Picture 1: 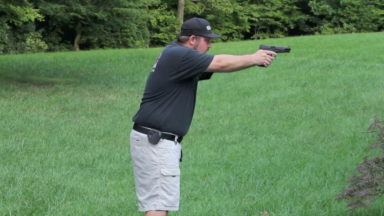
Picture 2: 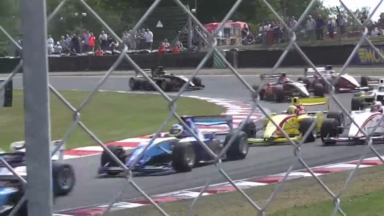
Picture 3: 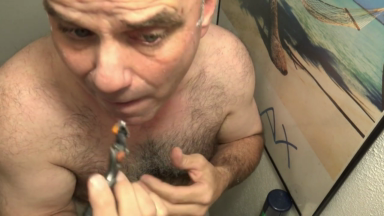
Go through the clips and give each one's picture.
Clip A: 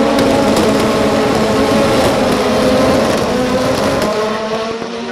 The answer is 2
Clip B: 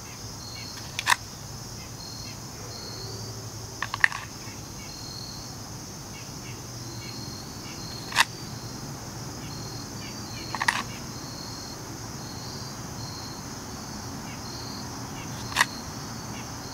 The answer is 1